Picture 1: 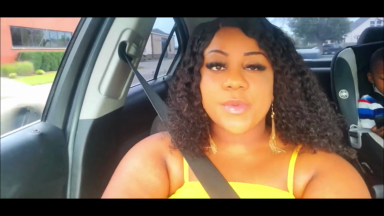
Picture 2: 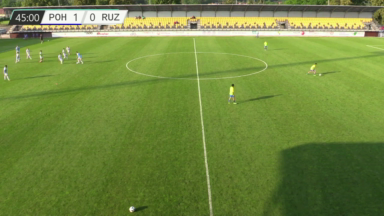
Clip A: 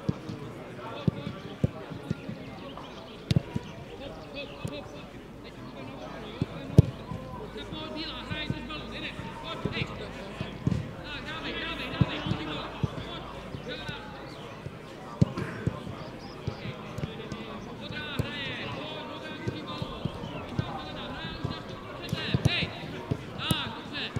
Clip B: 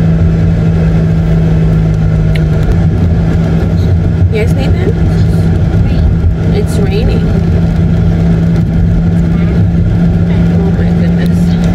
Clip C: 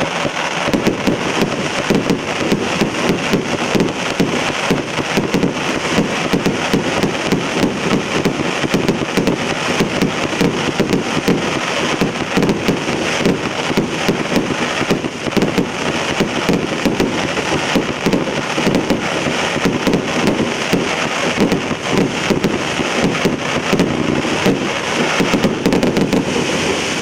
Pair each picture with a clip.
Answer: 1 B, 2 A